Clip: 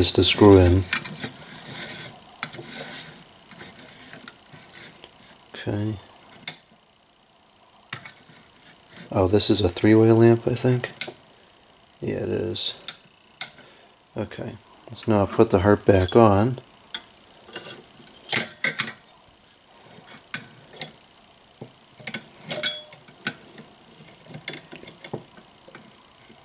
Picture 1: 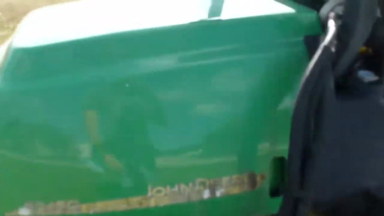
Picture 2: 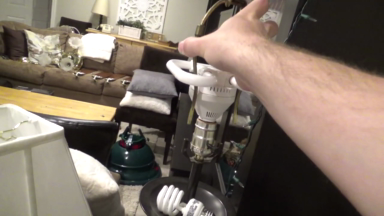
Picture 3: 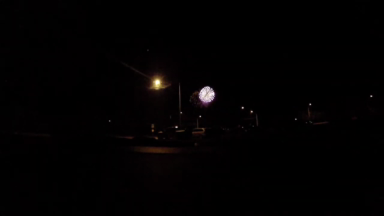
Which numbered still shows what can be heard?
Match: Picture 2